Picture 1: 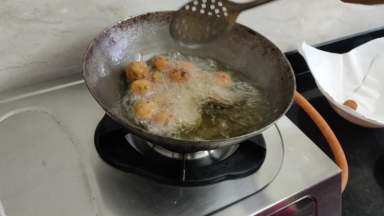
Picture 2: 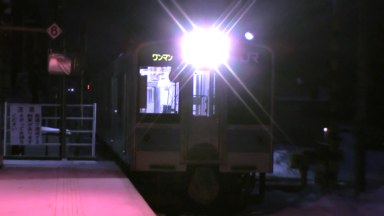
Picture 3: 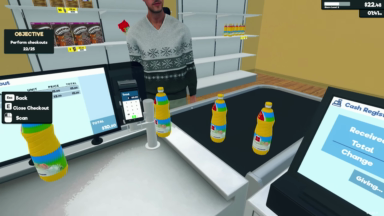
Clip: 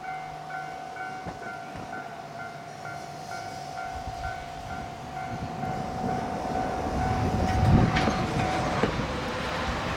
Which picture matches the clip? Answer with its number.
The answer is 2